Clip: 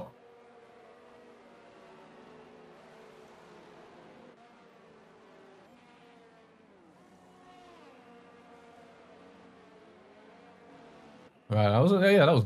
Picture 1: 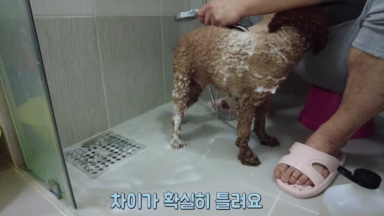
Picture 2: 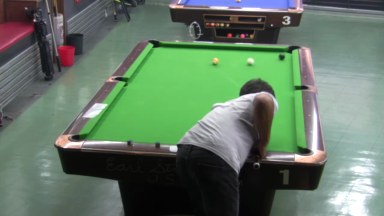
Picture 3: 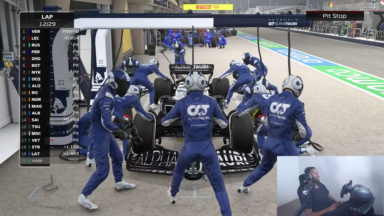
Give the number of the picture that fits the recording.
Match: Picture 3